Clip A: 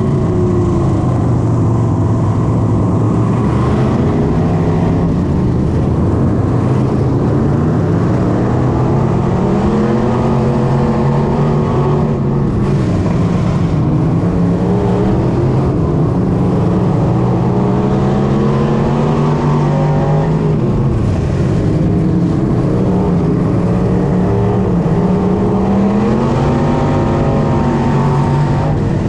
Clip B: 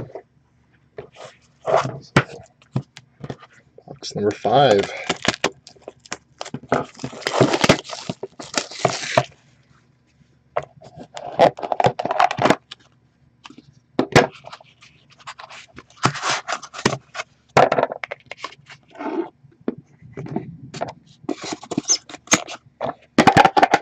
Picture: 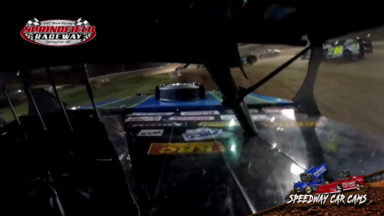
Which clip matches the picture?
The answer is A